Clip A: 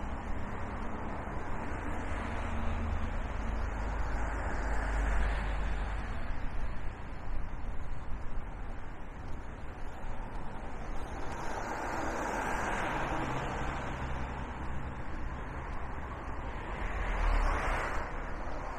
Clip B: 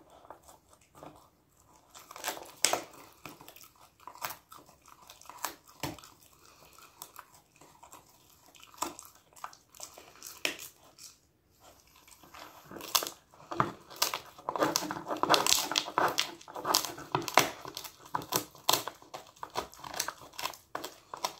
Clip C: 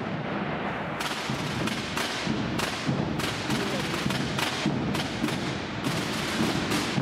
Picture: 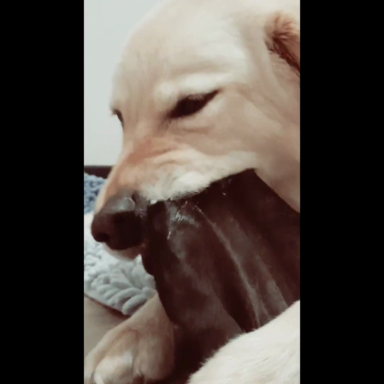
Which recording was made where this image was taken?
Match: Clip B